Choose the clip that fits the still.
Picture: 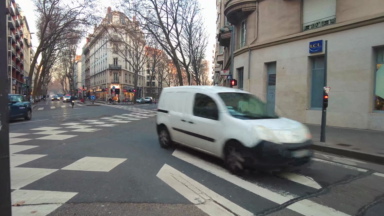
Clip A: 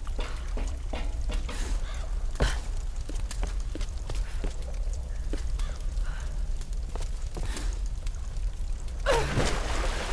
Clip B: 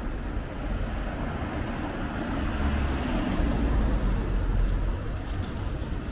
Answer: B